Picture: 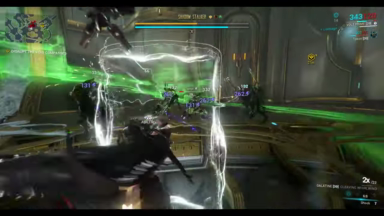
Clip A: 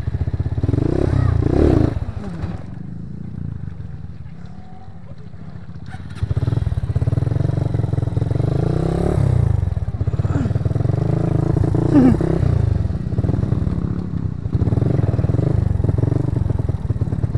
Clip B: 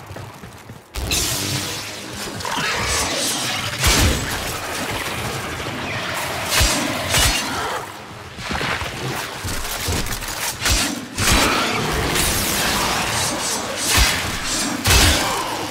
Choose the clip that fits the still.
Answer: B